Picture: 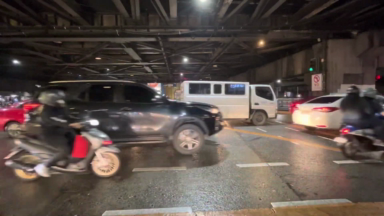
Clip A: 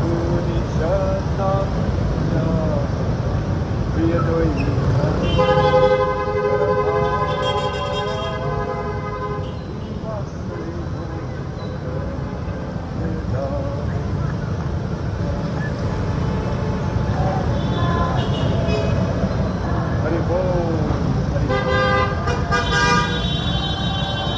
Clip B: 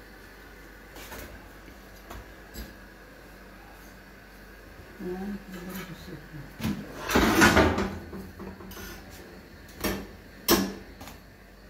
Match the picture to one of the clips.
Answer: A